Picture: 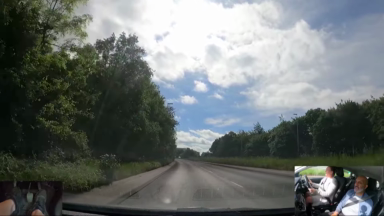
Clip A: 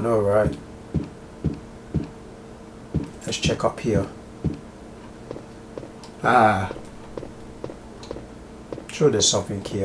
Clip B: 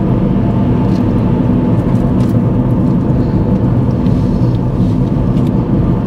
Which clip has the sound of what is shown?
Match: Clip B